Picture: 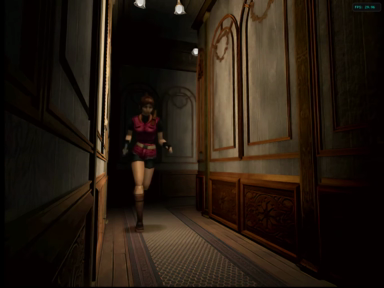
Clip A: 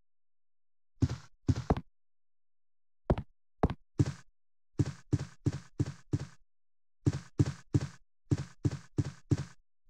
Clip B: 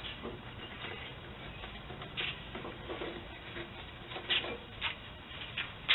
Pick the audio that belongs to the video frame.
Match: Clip A